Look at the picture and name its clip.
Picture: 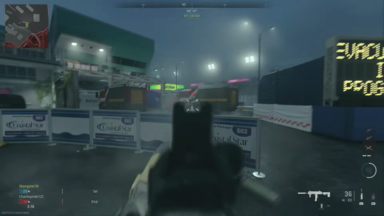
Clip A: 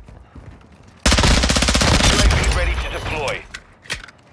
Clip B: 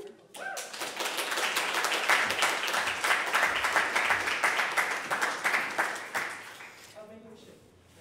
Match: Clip A